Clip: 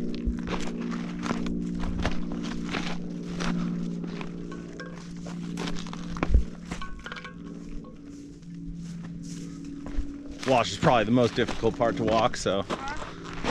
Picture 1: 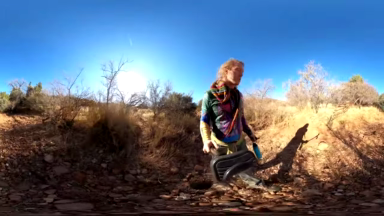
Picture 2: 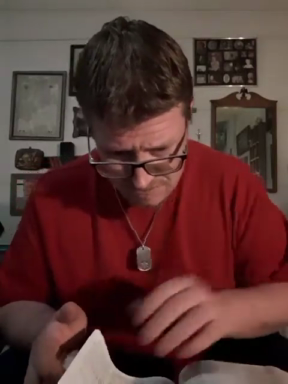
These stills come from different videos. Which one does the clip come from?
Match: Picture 1